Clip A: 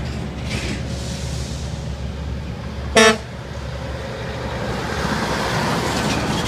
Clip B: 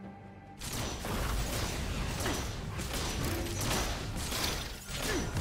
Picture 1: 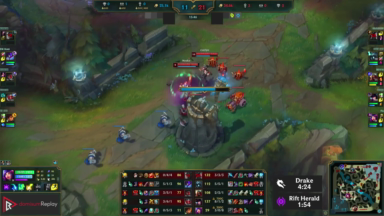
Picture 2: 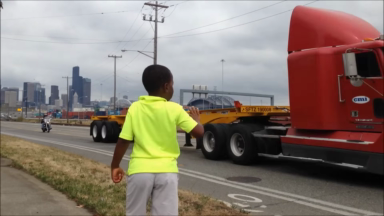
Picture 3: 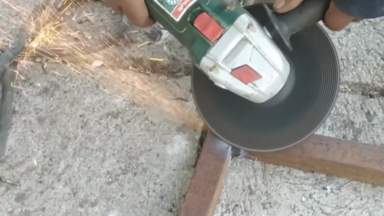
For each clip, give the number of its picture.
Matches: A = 2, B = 1